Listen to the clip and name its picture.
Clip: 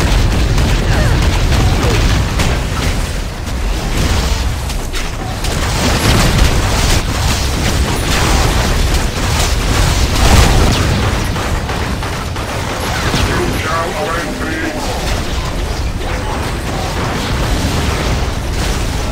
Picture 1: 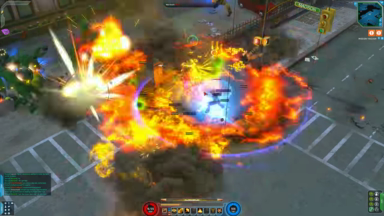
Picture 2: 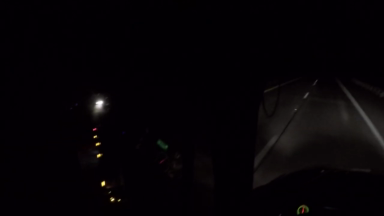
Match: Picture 1